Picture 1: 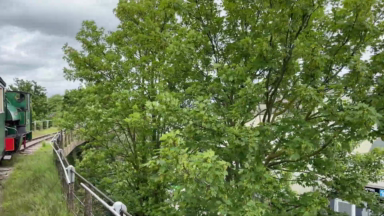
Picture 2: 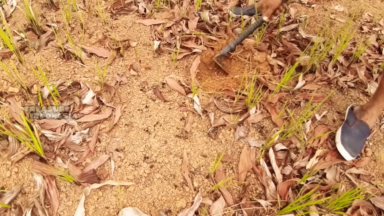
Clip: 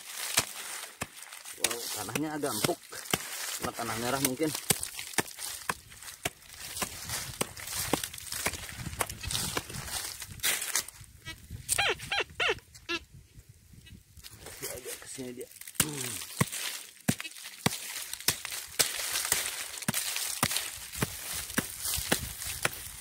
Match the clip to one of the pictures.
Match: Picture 2